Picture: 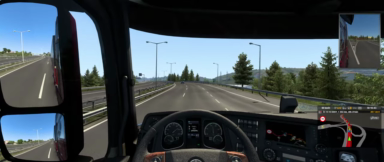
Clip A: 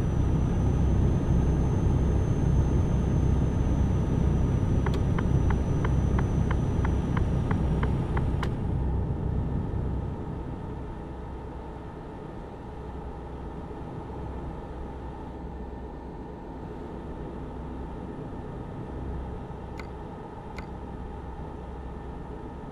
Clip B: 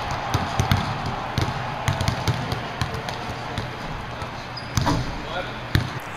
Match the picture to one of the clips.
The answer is A